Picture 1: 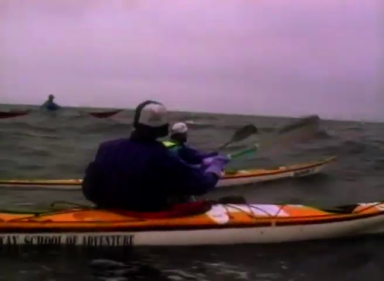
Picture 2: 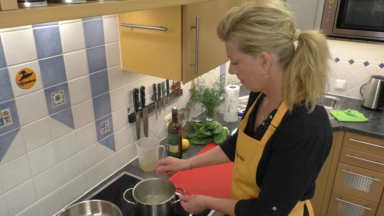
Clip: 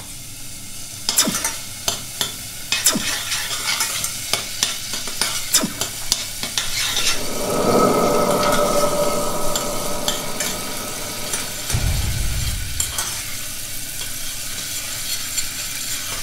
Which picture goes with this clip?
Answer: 2